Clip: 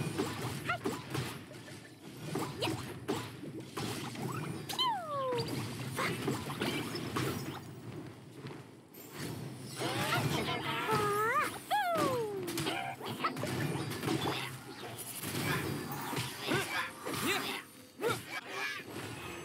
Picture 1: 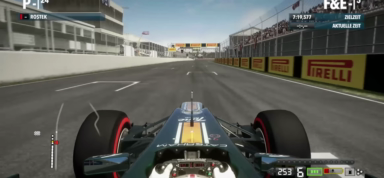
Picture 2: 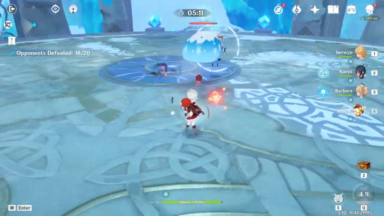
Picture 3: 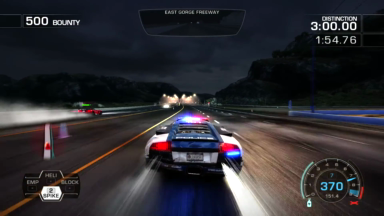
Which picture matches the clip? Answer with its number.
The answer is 2